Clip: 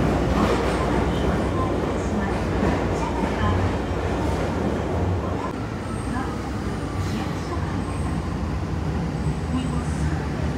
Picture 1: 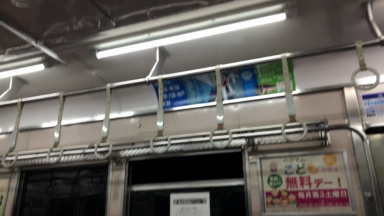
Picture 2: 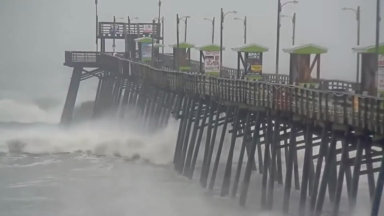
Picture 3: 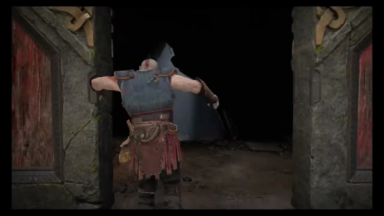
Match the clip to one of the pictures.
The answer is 1